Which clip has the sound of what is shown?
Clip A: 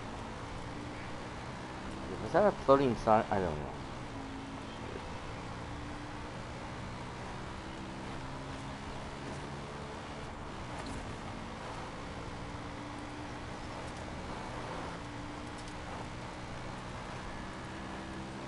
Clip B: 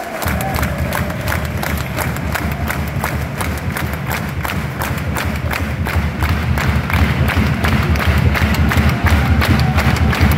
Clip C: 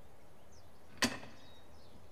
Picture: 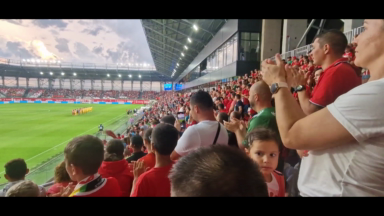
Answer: B